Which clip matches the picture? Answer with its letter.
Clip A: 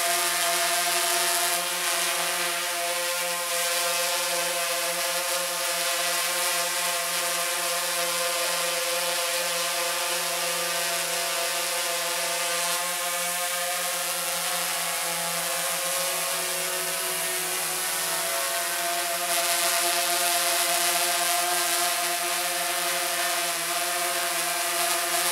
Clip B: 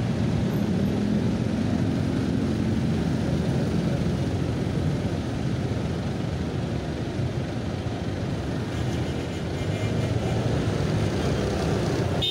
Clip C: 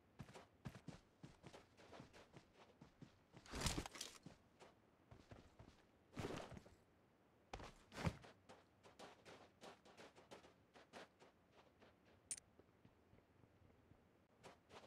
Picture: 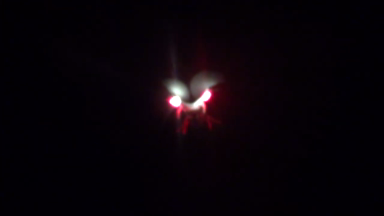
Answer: A